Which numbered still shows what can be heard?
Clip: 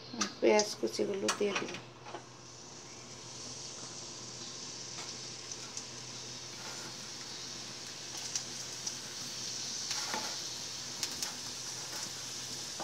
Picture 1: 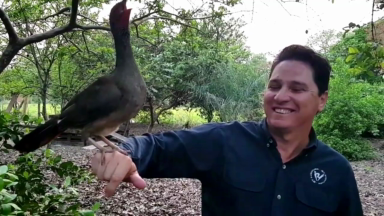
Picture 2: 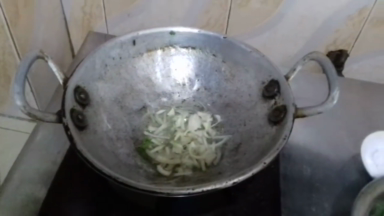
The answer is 2